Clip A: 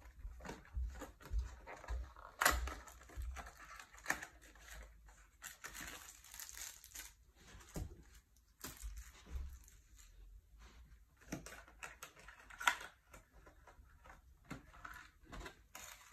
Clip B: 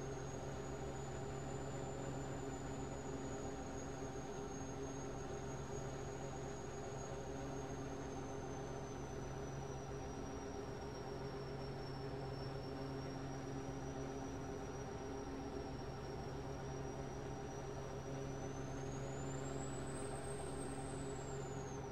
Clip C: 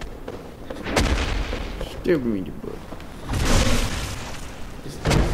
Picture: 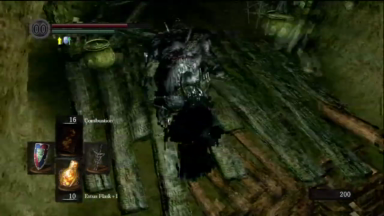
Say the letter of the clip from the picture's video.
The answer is C